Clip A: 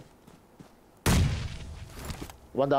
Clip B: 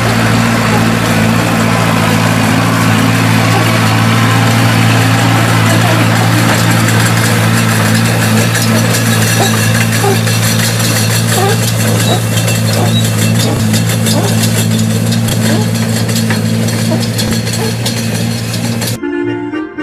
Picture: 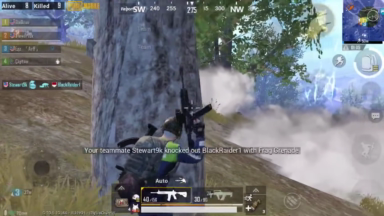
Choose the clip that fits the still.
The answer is A